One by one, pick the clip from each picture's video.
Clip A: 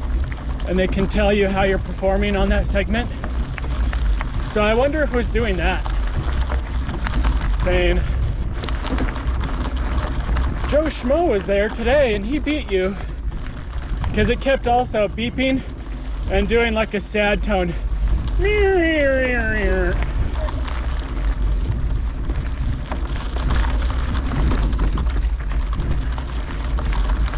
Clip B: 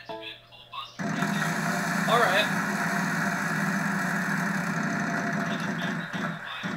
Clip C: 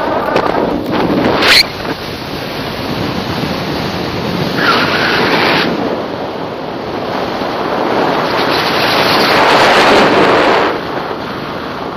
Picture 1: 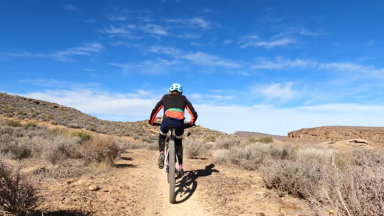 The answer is A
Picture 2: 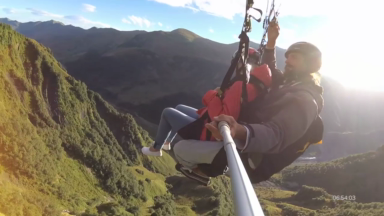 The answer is C